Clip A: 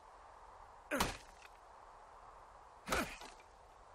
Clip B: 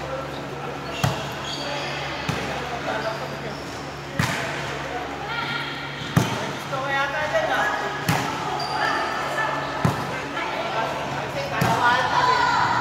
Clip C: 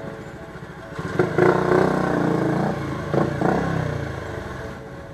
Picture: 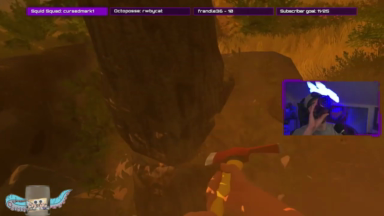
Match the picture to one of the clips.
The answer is A